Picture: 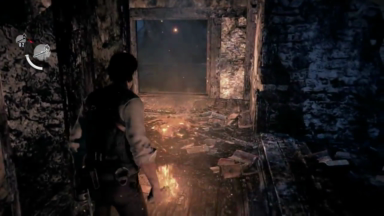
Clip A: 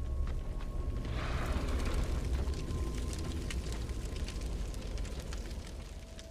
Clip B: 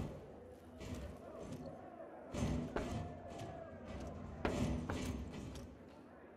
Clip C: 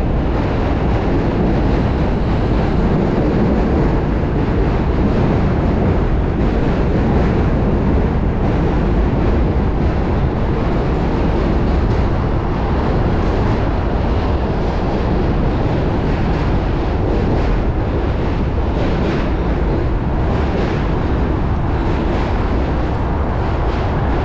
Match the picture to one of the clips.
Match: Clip A